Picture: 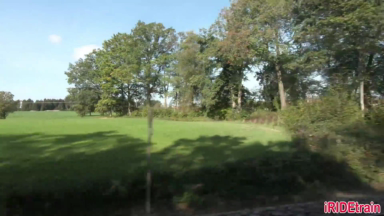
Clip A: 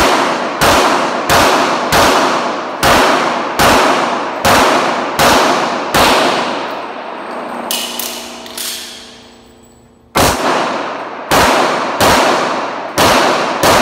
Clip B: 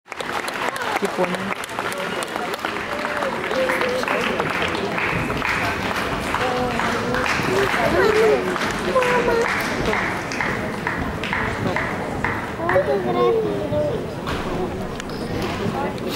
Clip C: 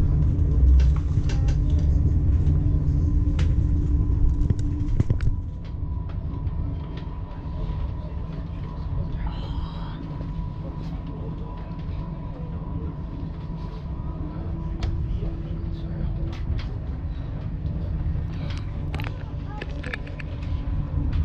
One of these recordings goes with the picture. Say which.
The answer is C